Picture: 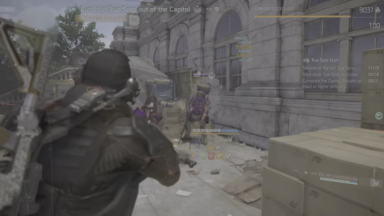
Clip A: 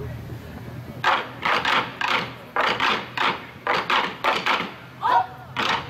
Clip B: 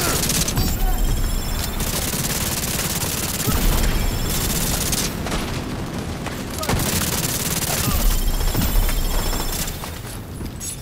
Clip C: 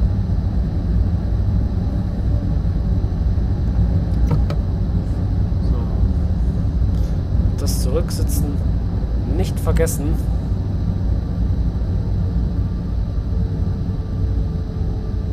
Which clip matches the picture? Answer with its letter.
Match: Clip B